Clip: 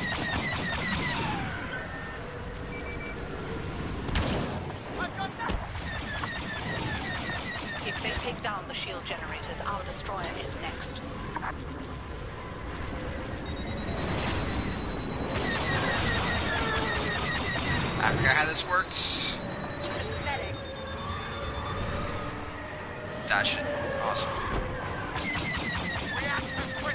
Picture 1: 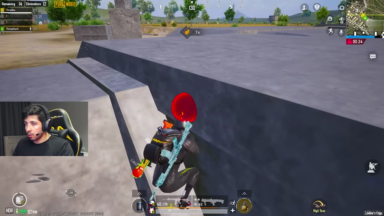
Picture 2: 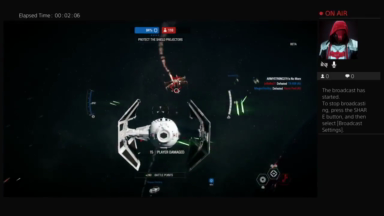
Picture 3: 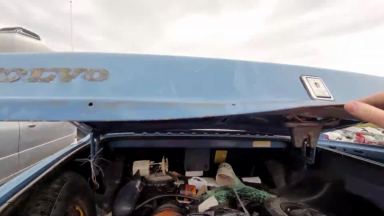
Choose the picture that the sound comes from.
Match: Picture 2